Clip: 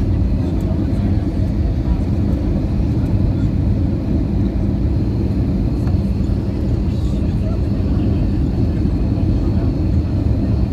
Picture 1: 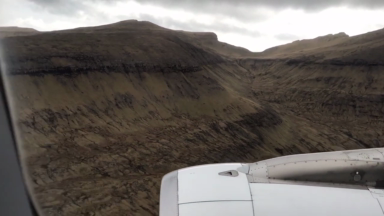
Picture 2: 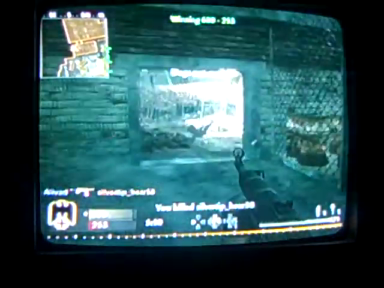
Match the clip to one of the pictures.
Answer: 1